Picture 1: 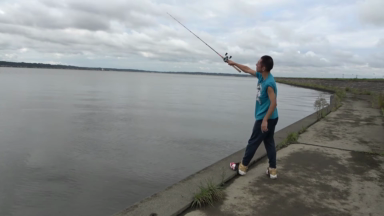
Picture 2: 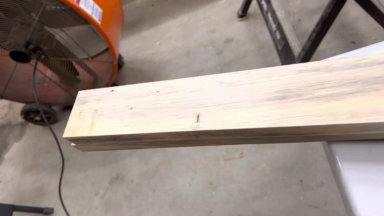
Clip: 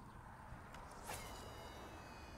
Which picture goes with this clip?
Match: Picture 1